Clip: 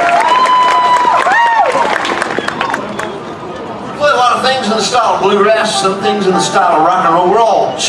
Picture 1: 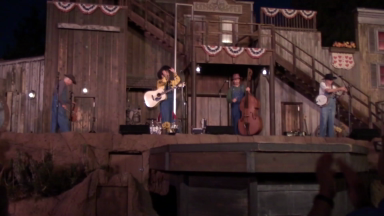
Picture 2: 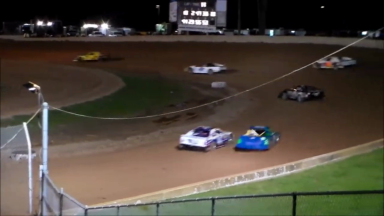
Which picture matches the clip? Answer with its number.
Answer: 1